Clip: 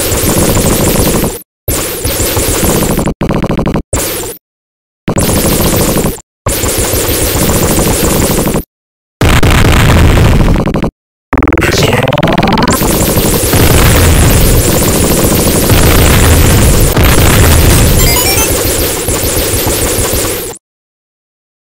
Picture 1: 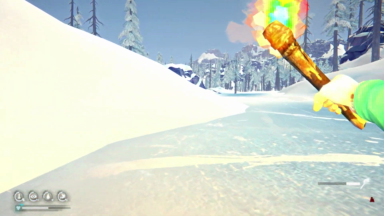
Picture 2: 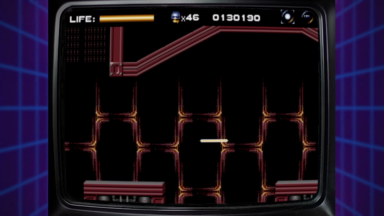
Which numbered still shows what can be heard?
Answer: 2